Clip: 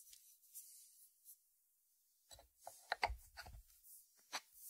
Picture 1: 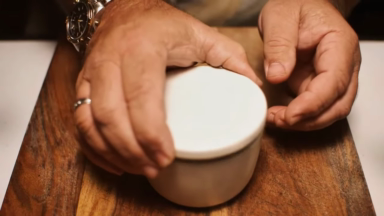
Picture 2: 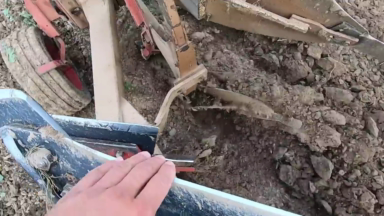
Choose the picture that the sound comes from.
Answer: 1